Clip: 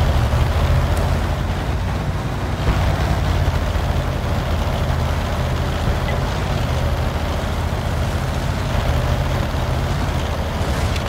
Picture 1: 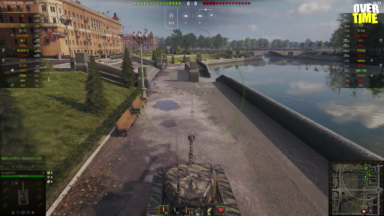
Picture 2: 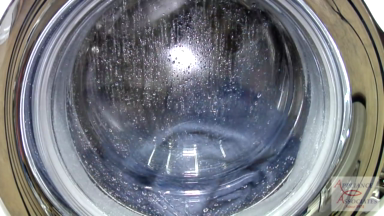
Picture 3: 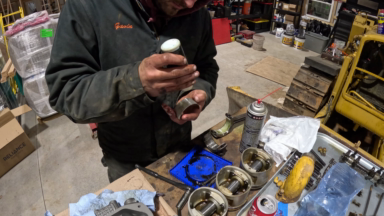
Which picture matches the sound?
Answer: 1